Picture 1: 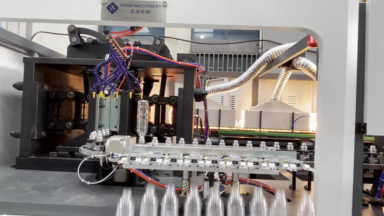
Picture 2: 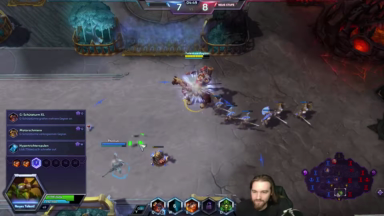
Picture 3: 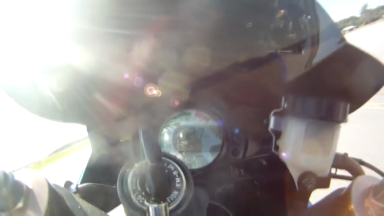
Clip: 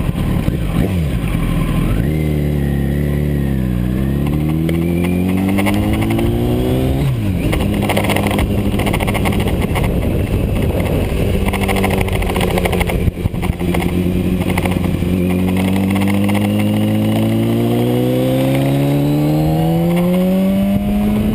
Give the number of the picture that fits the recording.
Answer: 3